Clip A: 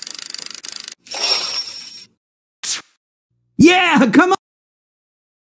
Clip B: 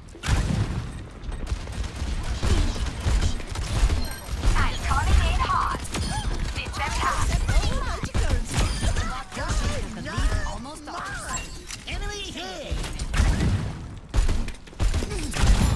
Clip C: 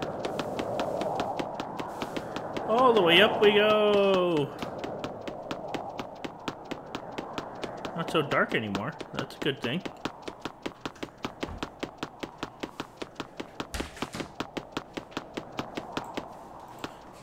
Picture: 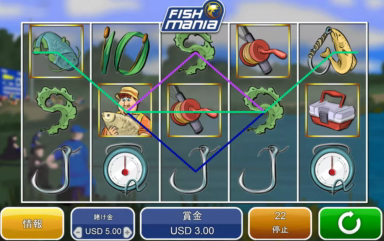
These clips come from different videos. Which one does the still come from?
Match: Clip A